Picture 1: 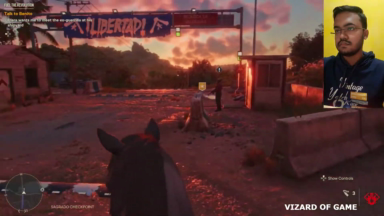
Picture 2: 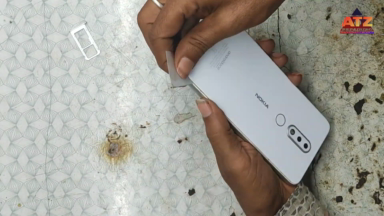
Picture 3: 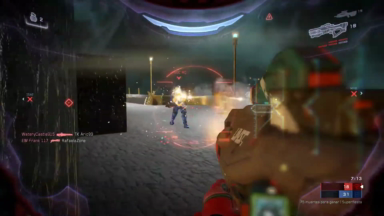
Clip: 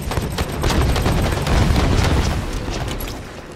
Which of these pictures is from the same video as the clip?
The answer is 3